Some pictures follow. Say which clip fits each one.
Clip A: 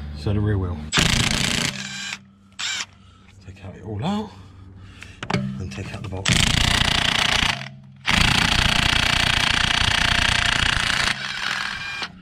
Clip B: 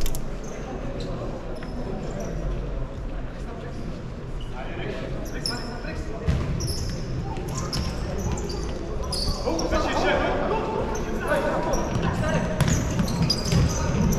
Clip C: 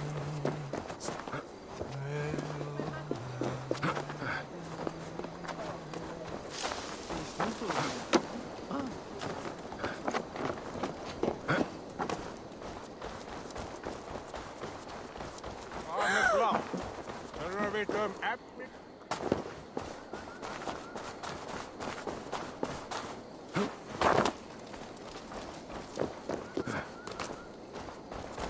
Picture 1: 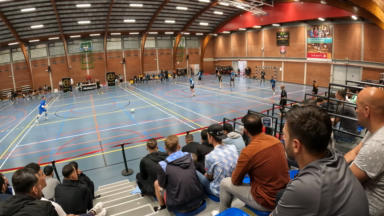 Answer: B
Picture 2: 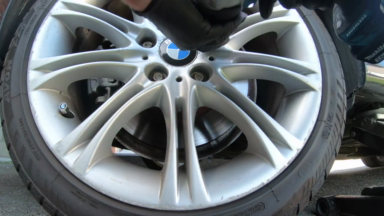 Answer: A